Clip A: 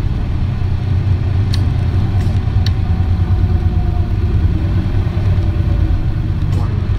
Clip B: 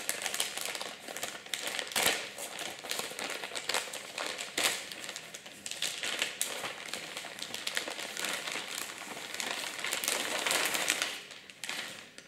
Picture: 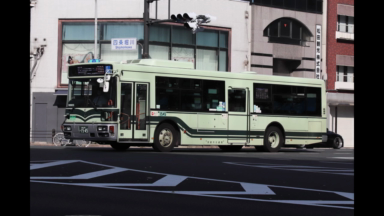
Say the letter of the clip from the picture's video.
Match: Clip A